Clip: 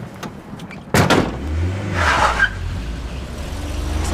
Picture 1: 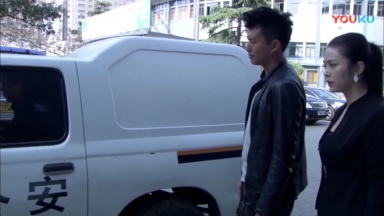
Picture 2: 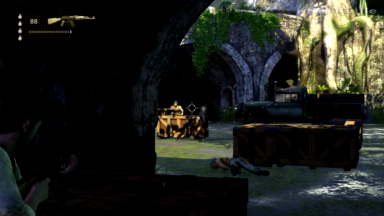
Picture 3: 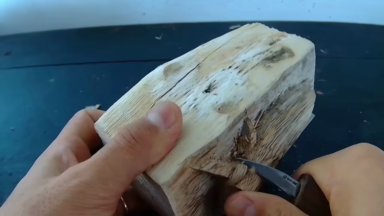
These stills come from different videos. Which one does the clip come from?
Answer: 1